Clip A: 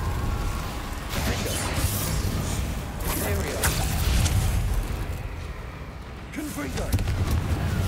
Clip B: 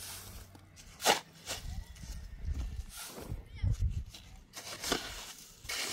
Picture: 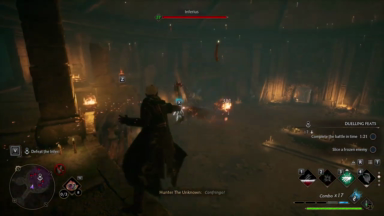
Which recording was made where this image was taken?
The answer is A